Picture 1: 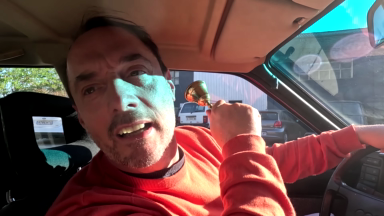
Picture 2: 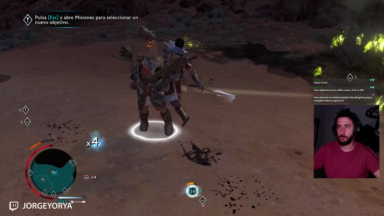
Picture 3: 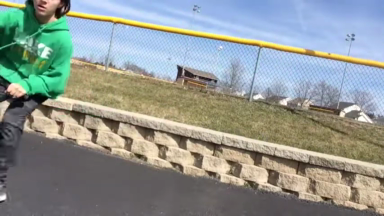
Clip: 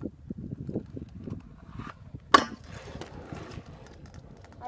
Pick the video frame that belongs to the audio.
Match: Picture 3